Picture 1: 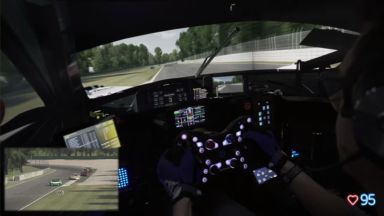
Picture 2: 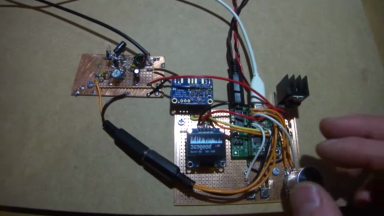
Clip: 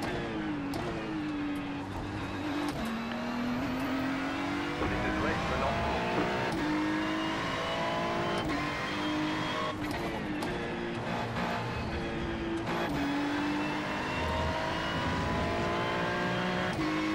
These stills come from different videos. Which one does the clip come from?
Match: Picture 1